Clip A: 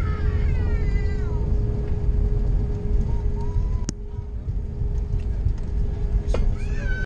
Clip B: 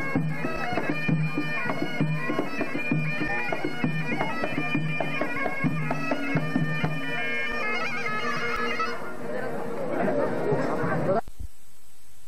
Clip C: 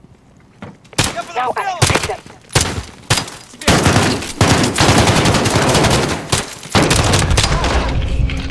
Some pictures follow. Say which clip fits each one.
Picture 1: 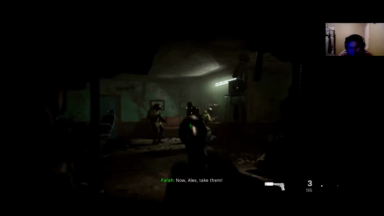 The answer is C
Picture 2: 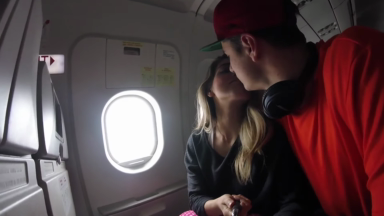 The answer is A